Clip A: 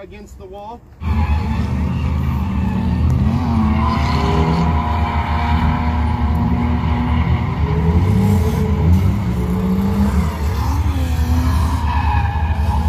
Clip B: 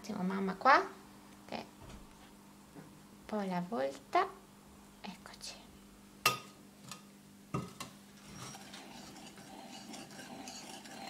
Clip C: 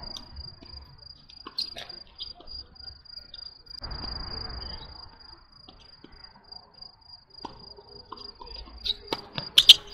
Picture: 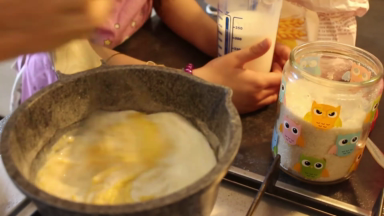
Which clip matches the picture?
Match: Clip B